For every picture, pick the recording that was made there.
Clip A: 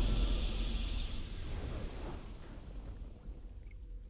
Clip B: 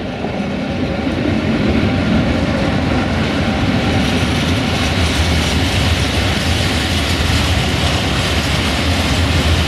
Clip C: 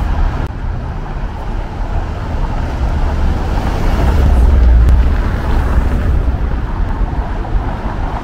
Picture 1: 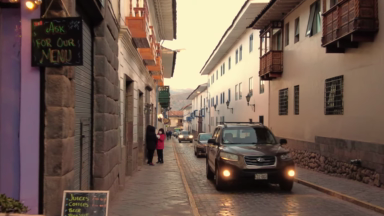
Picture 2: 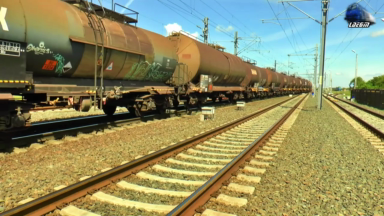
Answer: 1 C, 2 B